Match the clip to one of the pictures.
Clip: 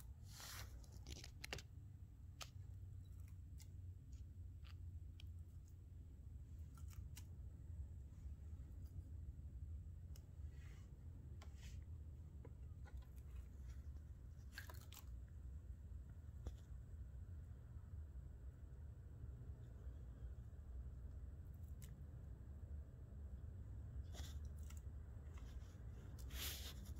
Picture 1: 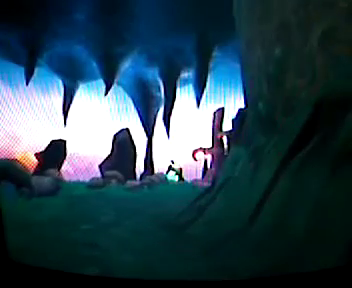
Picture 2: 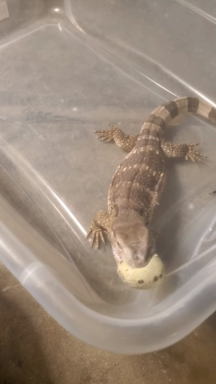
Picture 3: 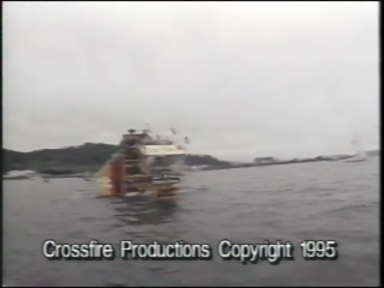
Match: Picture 2